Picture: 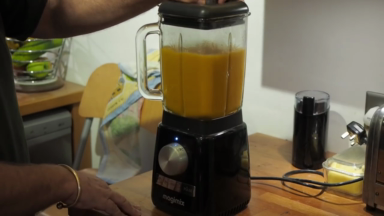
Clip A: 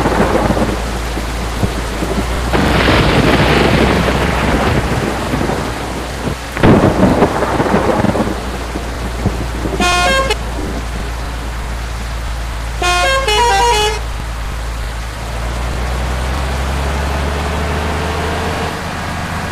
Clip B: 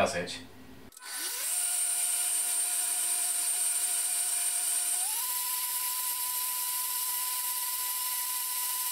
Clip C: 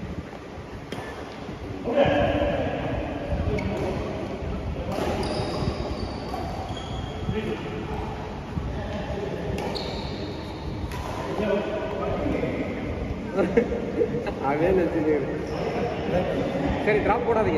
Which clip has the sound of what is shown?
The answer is B